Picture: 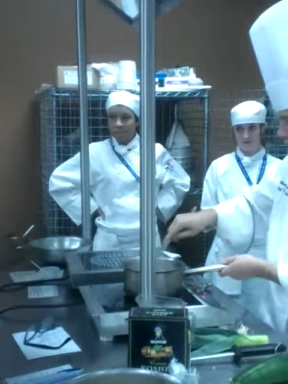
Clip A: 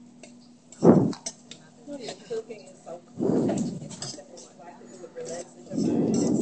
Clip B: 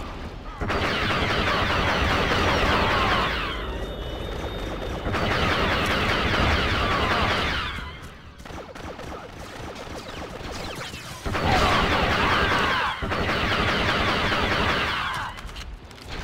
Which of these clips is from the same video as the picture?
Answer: A